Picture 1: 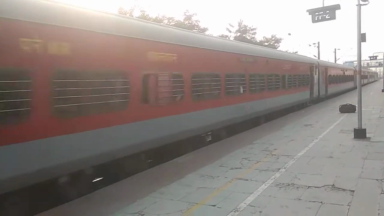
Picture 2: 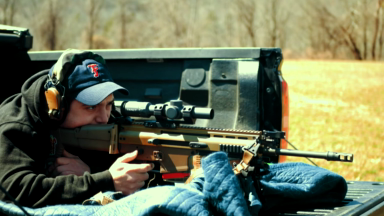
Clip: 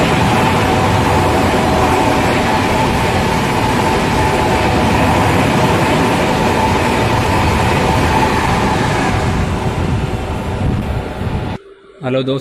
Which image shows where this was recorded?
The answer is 1